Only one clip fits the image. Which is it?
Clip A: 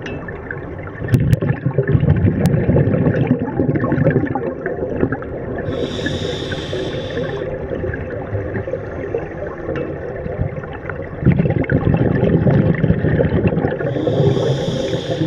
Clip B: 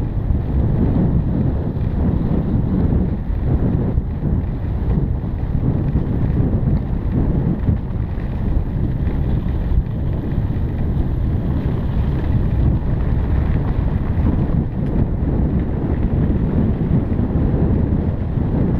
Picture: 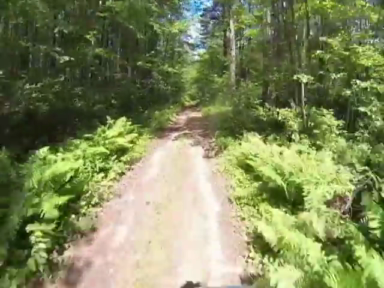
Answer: B